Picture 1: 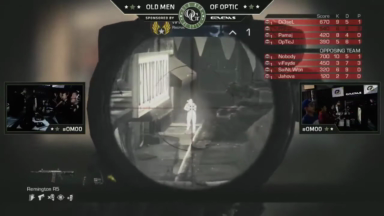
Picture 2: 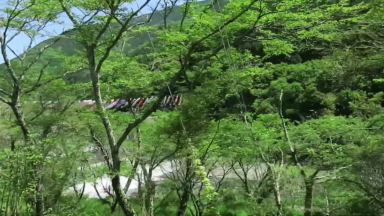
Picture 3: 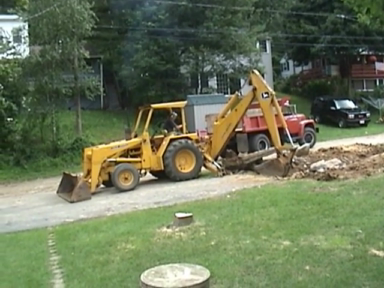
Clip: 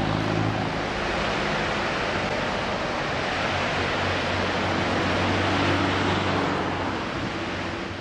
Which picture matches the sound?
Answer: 2